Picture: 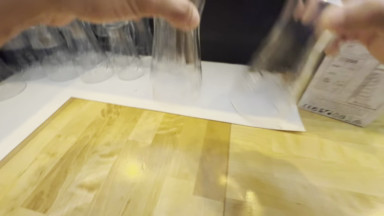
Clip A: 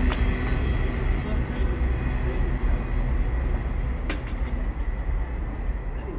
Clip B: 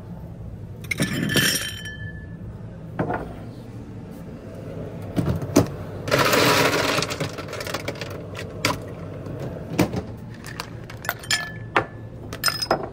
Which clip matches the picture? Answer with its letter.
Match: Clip B